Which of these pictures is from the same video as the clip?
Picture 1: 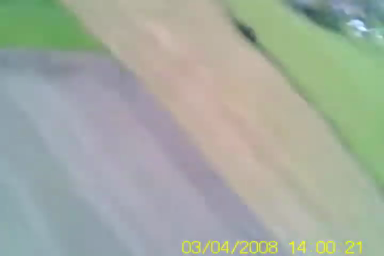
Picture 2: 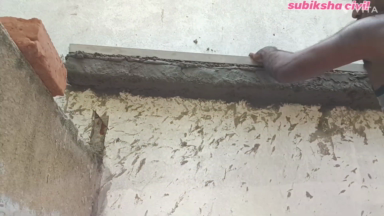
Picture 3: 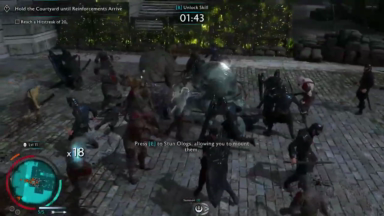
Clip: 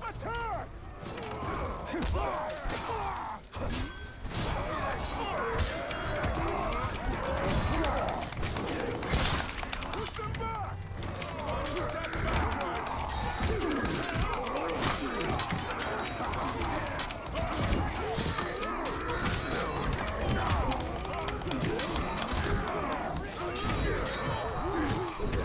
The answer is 3